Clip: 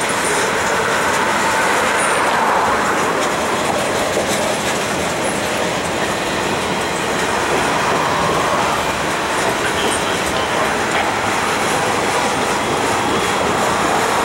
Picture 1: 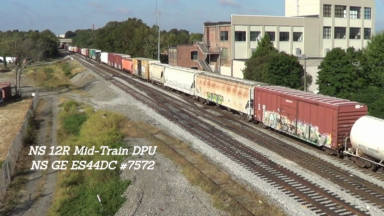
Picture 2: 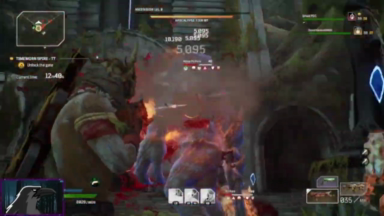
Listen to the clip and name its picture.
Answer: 1